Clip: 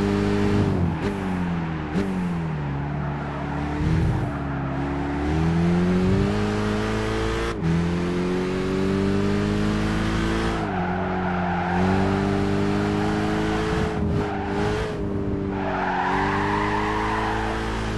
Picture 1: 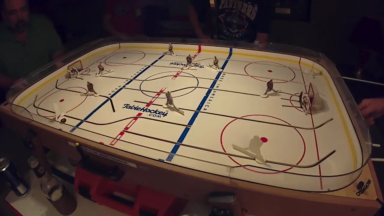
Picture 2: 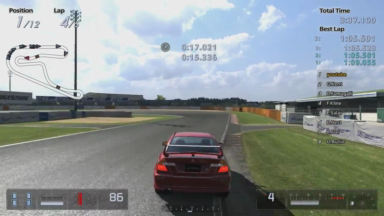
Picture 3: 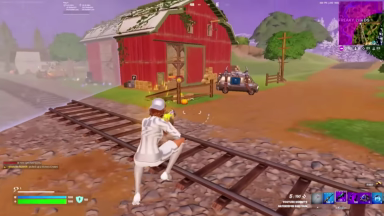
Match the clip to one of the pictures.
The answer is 2